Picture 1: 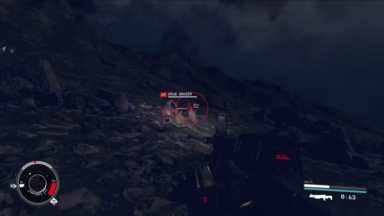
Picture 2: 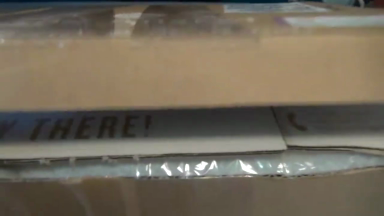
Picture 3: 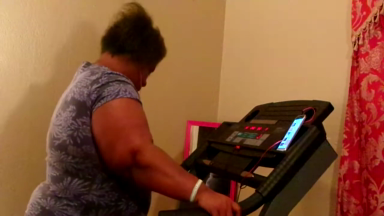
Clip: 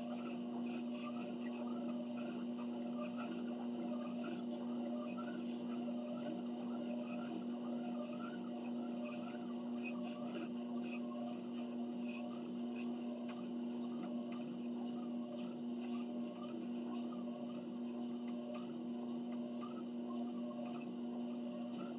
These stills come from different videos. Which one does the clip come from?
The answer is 3